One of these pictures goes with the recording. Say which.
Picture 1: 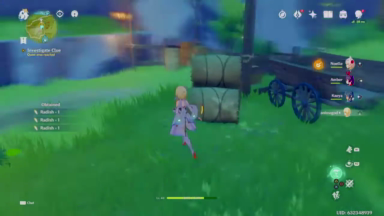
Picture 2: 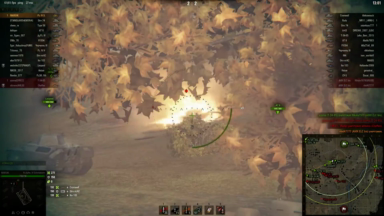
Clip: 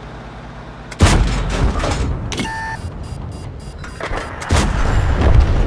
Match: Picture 2